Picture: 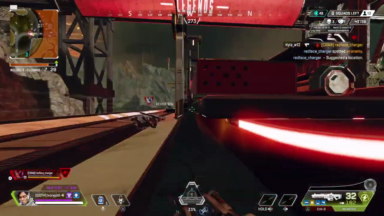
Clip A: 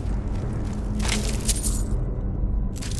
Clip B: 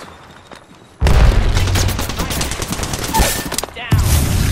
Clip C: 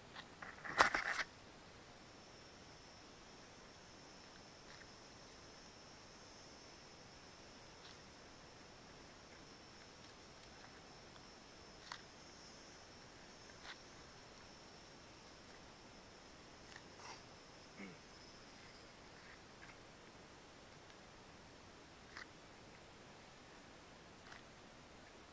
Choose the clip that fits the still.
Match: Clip B